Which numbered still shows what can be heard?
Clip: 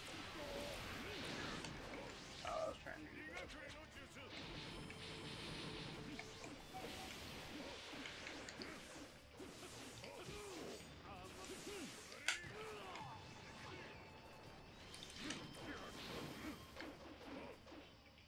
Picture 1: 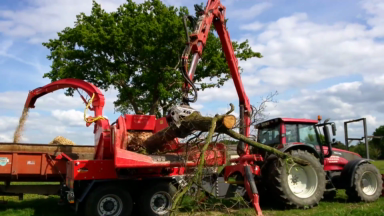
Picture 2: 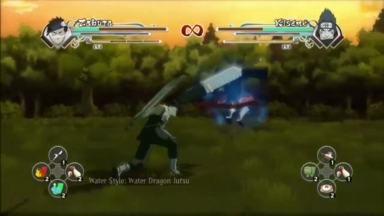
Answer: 2